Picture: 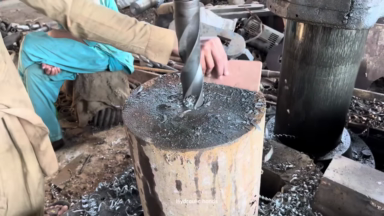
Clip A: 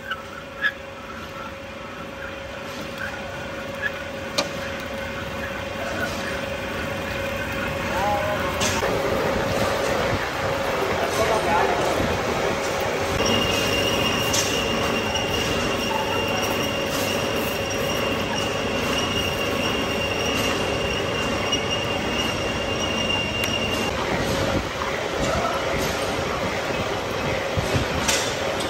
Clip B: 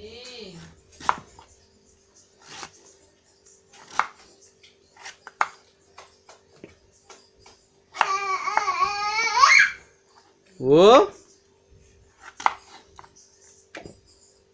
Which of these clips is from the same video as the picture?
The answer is A